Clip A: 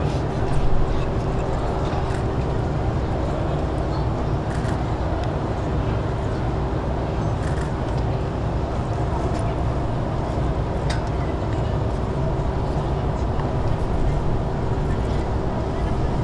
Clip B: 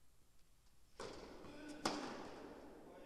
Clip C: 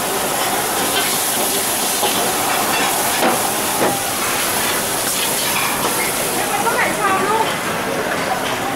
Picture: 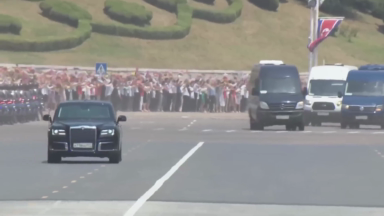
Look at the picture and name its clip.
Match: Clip A